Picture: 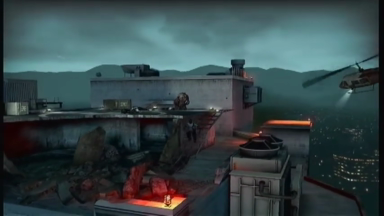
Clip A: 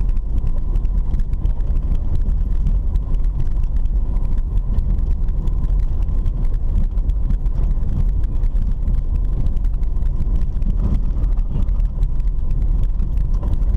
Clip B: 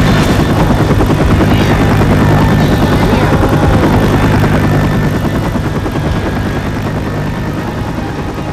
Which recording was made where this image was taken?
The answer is B